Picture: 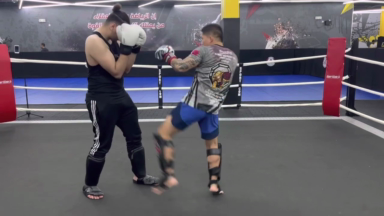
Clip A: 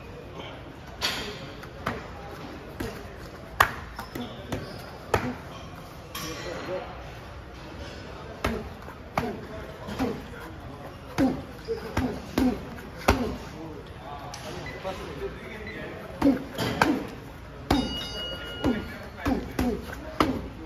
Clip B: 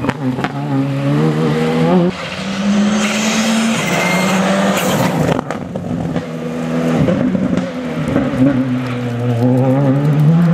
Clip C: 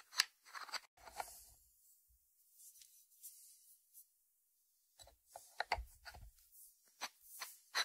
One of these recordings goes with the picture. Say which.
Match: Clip A